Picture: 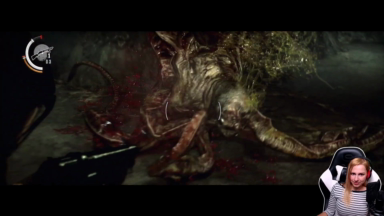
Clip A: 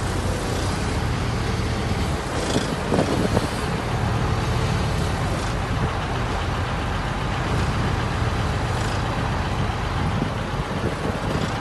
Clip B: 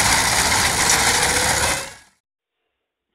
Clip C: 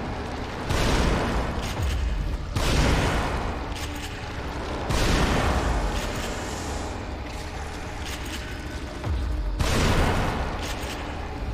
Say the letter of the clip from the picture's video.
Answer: C